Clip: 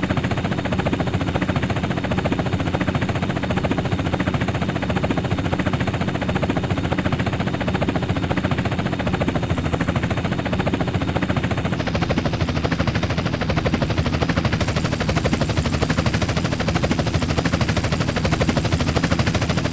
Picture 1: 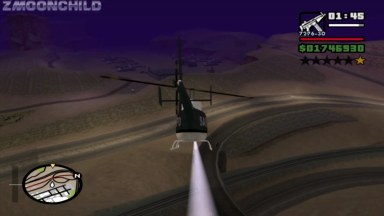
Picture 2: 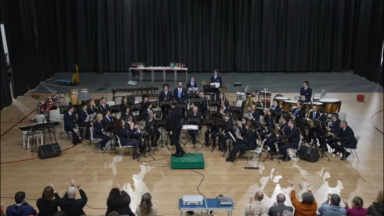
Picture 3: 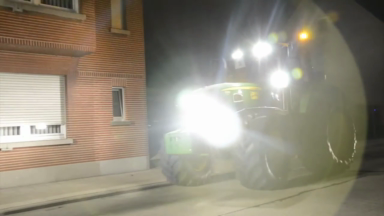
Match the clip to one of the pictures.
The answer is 1